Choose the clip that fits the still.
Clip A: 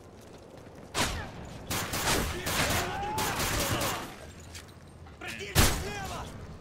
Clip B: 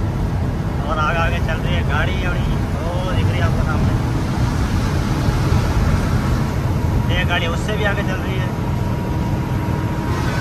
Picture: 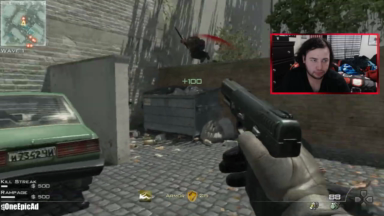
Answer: A